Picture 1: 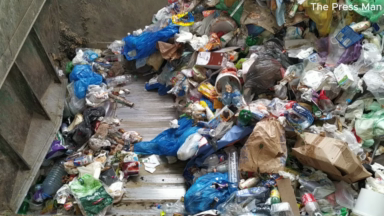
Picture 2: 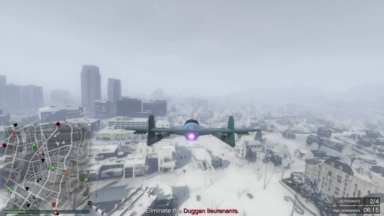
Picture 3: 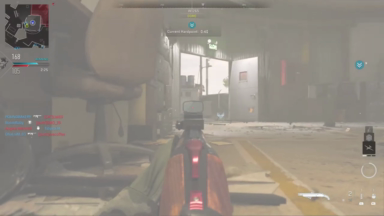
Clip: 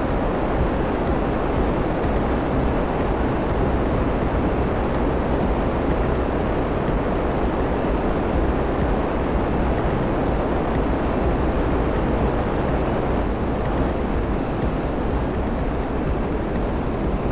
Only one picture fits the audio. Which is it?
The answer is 2